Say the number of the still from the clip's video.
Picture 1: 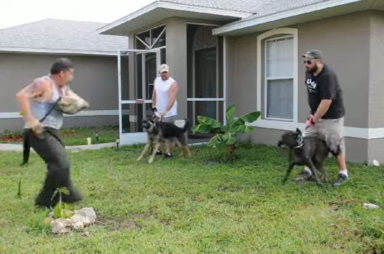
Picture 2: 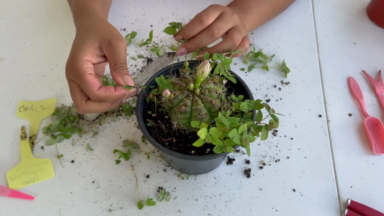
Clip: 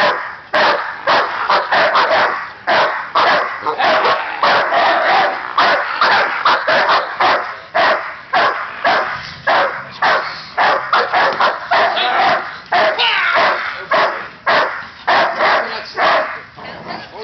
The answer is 1